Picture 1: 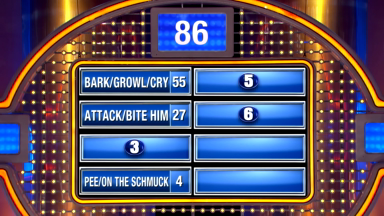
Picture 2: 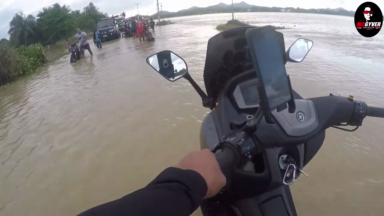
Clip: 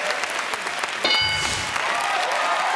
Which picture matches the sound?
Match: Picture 1